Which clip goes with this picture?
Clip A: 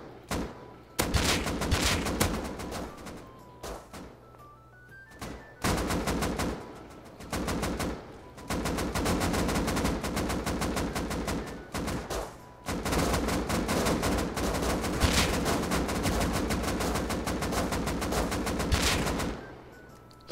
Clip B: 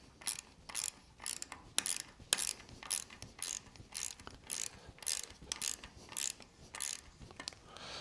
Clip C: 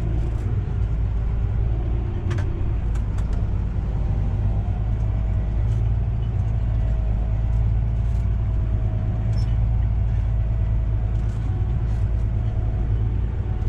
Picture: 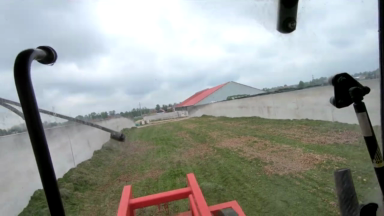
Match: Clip C